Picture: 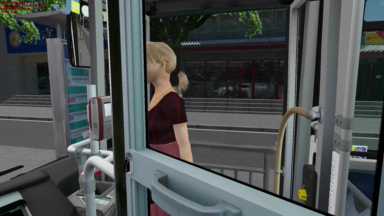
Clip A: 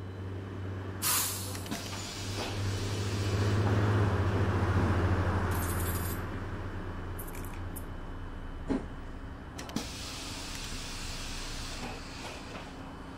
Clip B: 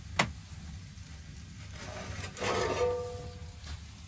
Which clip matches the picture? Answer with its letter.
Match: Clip A